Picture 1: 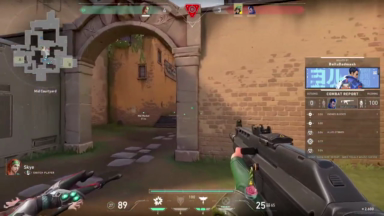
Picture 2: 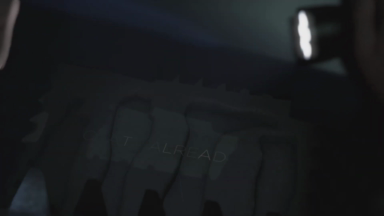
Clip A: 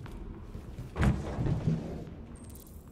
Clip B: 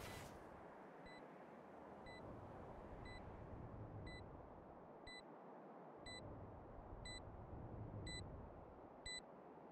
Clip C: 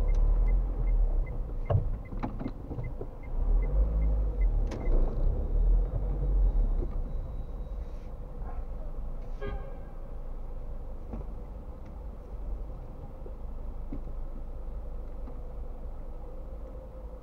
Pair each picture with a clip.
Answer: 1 B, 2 A